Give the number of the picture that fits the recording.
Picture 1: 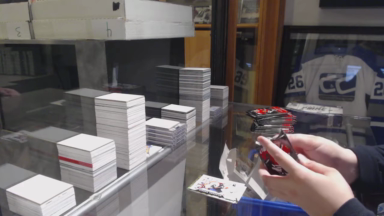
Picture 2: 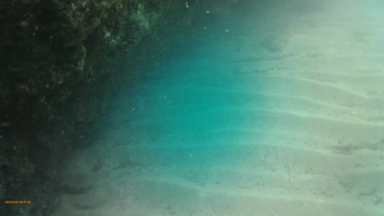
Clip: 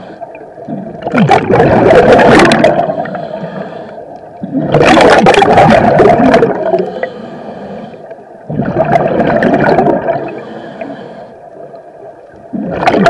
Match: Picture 2